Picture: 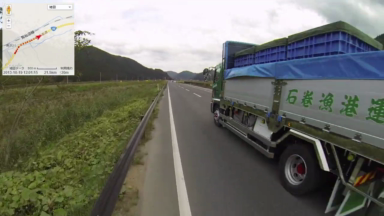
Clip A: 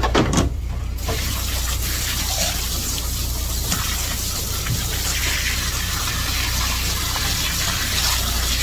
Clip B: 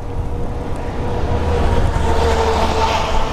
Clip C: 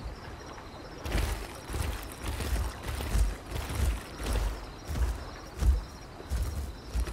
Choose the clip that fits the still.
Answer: B